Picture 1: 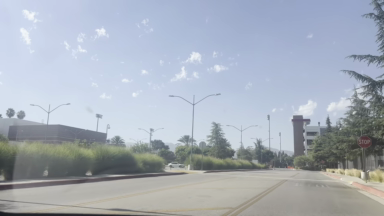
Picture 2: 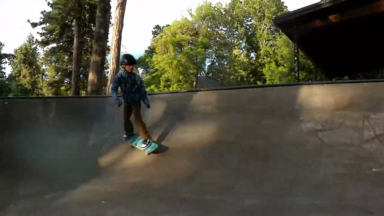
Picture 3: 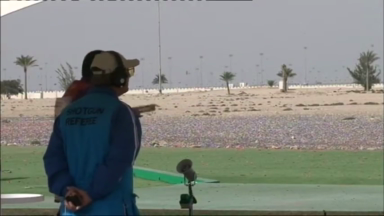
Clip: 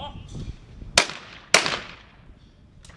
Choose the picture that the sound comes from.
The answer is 3